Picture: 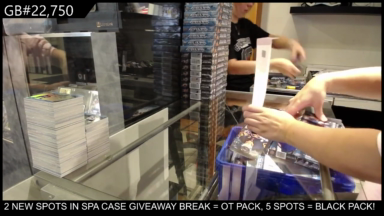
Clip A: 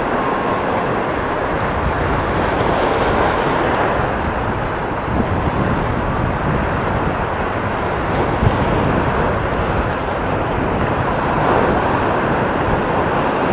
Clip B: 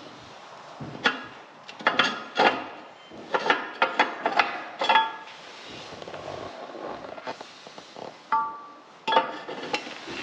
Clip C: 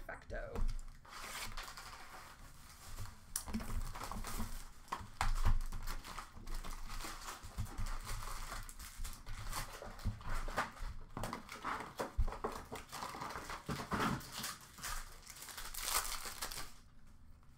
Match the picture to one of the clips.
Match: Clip C